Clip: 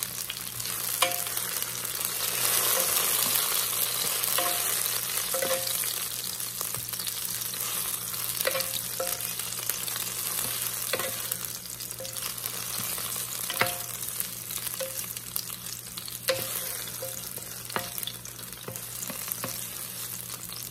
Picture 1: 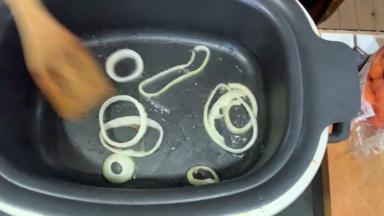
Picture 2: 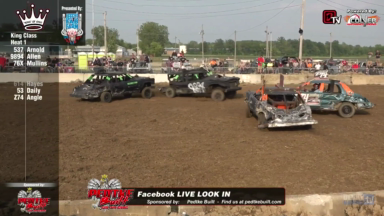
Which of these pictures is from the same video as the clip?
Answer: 1